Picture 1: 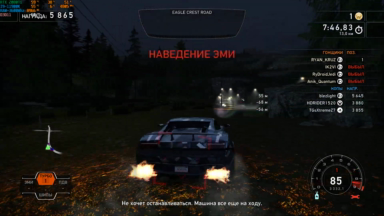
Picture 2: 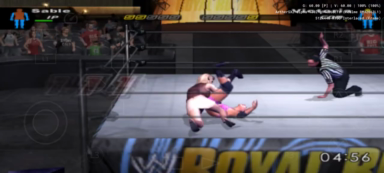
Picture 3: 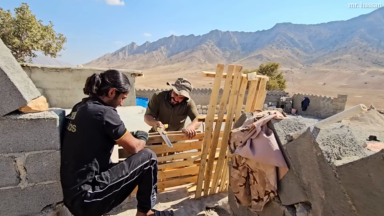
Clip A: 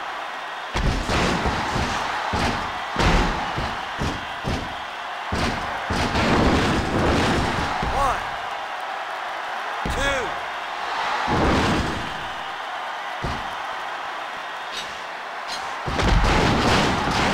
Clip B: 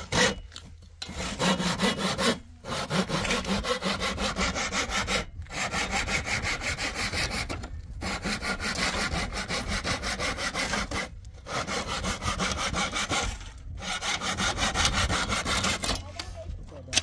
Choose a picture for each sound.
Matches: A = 2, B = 3